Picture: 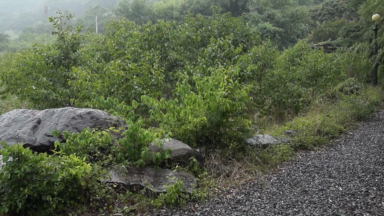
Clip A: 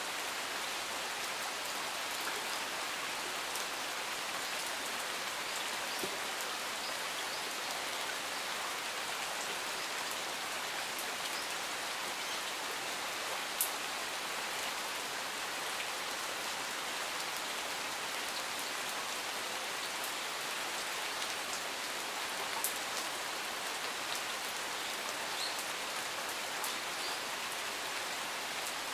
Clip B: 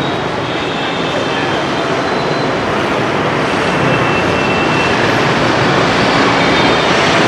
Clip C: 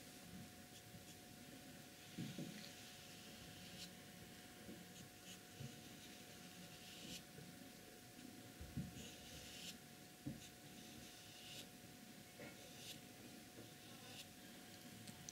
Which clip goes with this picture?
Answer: A